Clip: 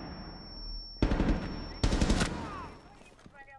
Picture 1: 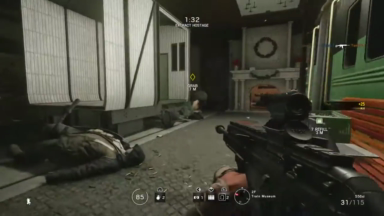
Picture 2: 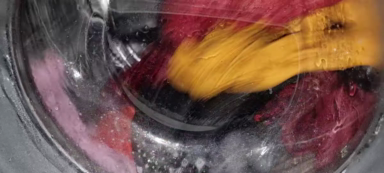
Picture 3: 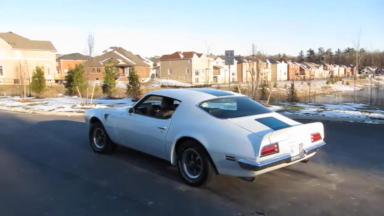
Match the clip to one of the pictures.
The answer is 1